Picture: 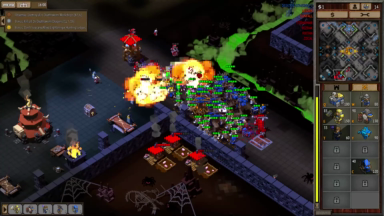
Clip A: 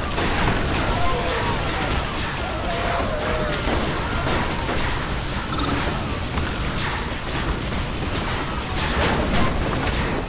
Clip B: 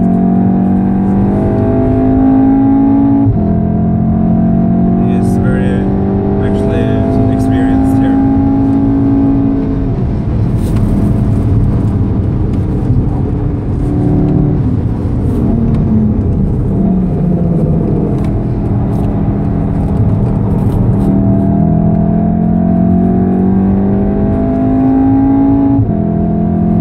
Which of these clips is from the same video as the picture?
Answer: A